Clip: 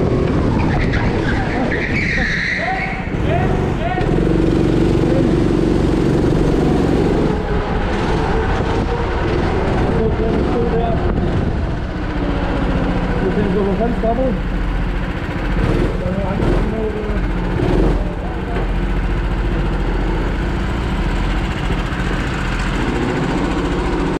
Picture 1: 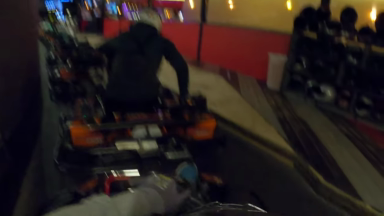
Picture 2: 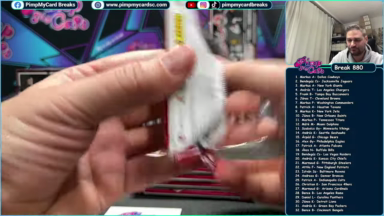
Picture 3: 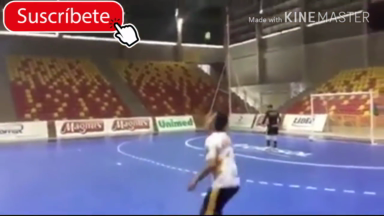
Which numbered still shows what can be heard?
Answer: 1